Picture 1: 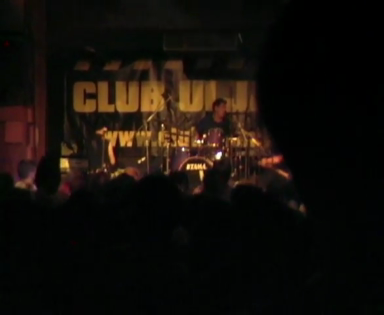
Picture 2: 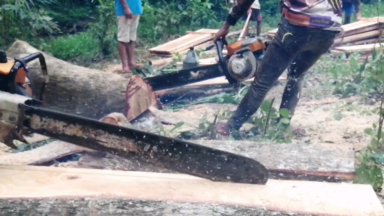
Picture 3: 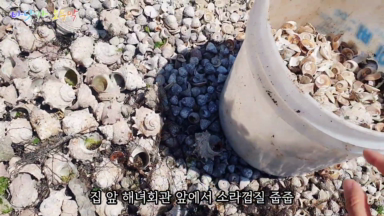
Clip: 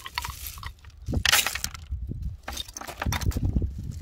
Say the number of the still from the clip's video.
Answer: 3